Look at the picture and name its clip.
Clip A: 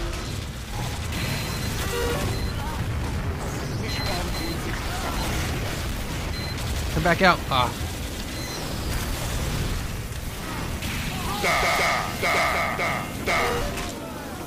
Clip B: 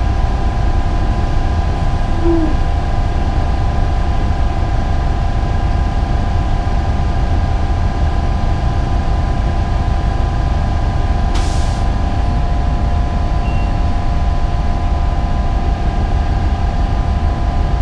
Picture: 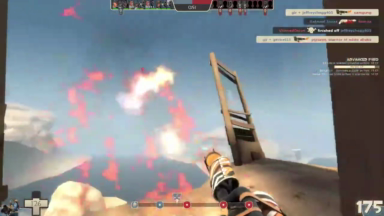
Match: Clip A